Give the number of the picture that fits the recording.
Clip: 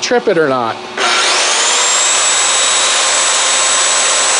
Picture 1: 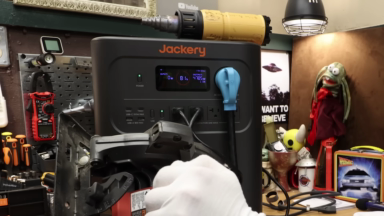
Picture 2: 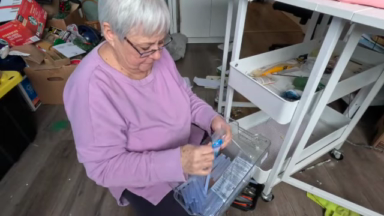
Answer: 1